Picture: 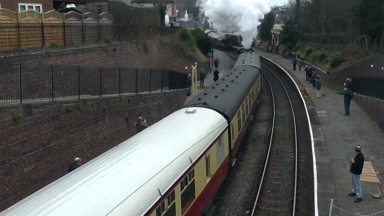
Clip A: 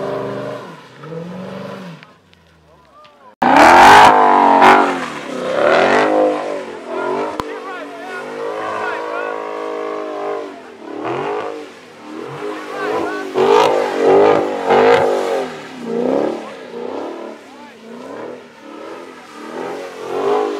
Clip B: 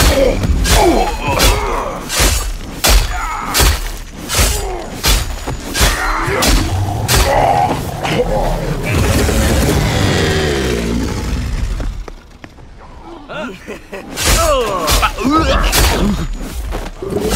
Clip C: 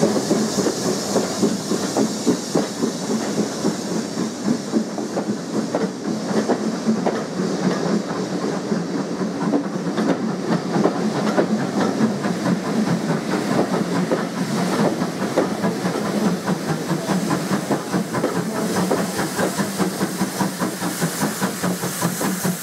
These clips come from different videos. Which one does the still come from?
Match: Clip C